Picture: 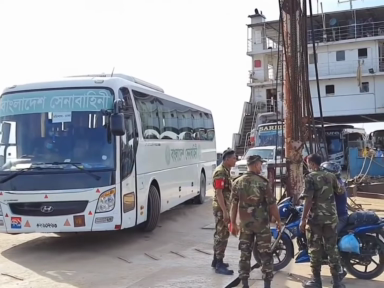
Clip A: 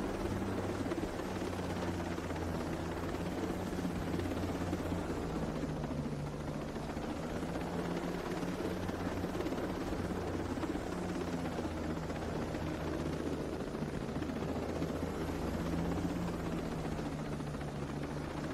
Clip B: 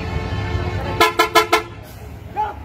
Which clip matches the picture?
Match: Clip B